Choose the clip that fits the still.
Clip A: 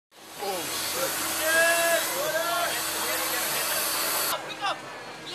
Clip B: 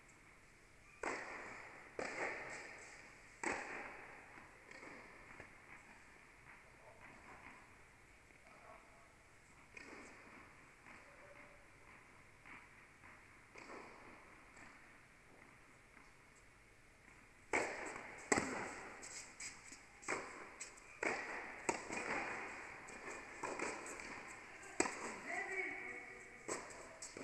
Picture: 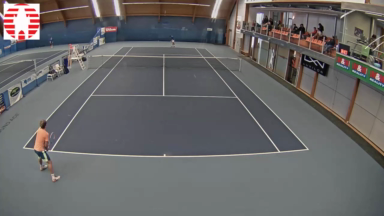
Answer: B